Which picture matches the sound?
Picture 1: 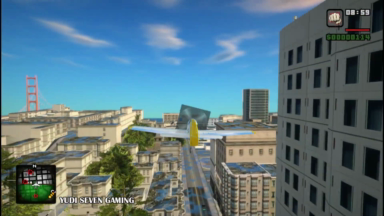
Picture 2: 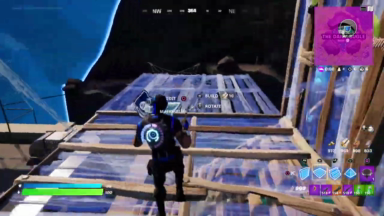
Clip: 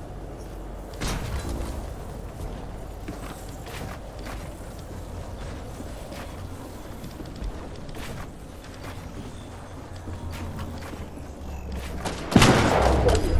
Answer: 2